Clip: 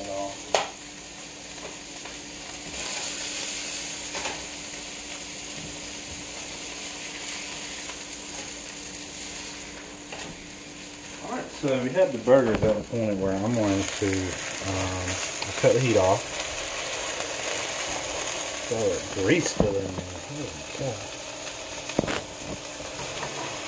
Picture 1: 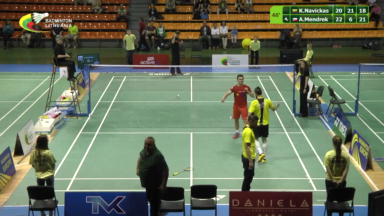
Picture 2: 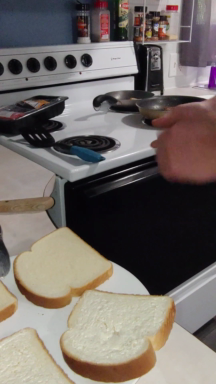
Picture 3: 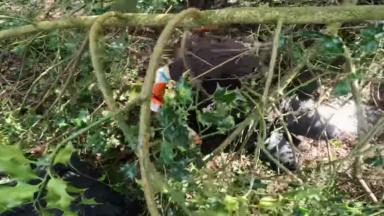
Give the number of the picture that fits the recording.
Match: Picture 2